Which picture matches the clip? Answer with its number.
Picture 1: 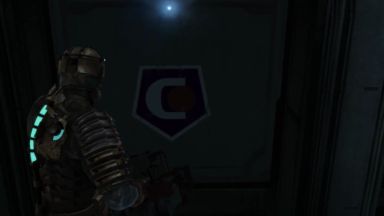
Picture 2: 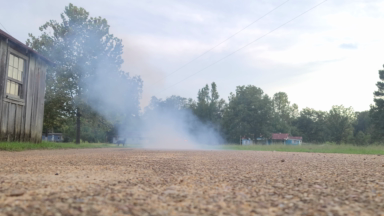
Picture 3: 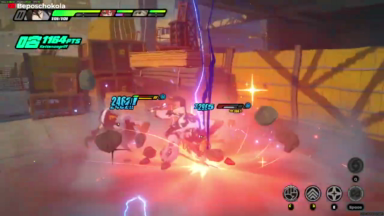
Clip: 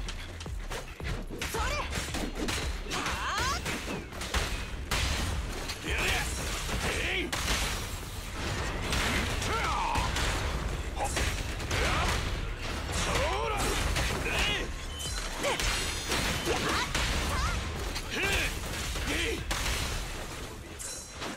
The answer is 3